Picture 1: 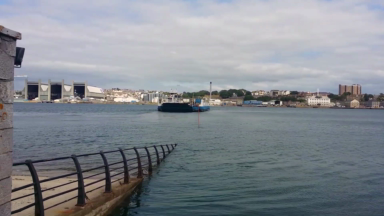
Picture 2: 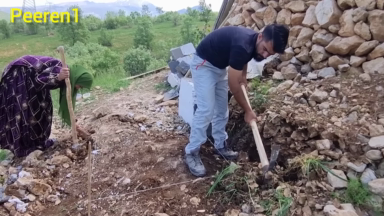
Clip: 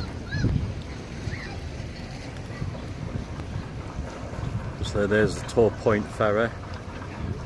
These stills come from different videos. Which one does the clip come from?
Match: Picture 1